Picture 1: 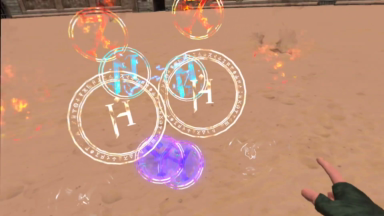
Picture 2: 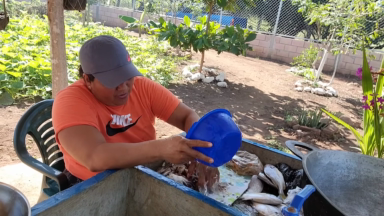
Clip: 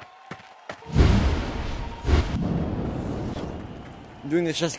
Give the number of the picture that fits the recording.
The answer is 1